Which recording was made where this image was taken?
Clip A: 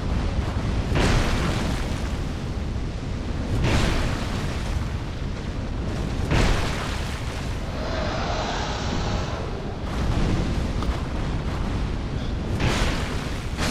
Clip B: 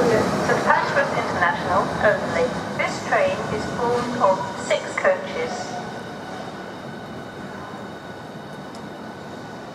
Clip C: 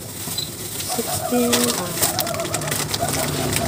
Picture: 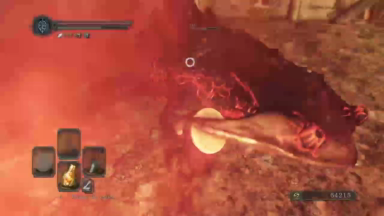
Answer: A